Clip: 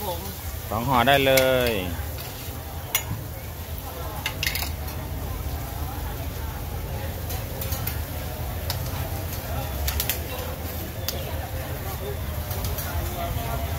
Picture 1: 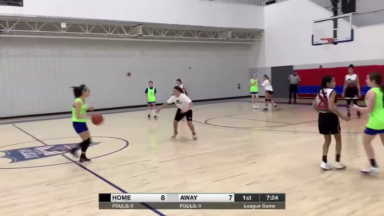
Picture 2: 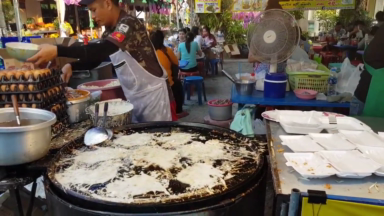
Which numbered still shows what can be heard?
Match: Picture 2